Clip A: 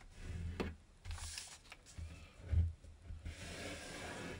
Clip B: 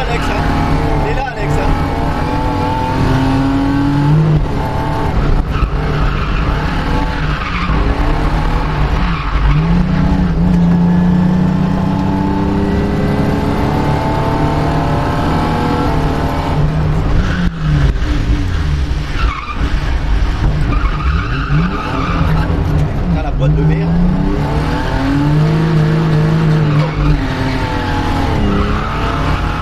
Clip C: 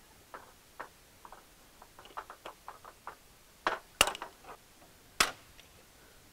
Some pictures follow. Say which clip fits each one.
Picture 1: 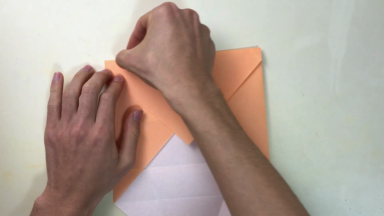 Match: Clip A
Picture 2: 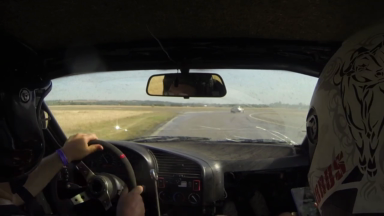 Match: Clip B